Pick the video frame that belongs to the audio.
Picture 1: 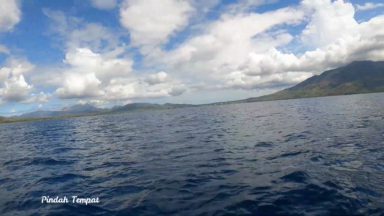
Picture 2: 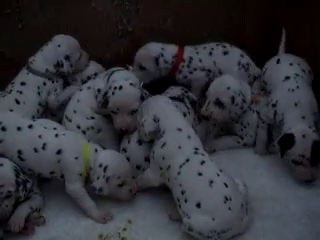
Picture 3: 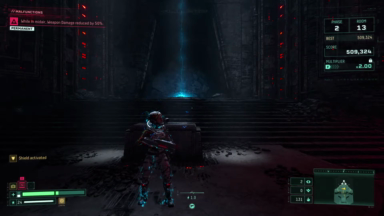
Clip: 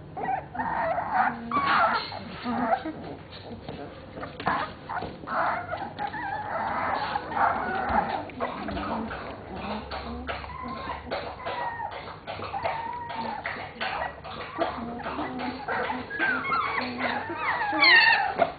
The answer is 2